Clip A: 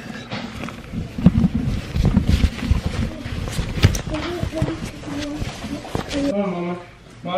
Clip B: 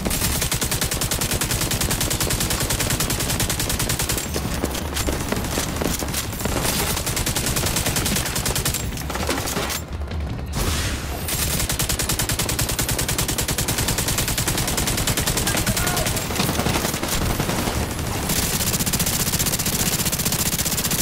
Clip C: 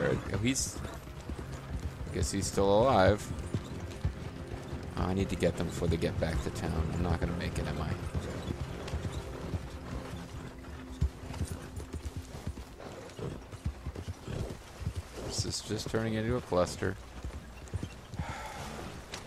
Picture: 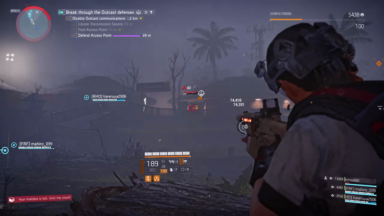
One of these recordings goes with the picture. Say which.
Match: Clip B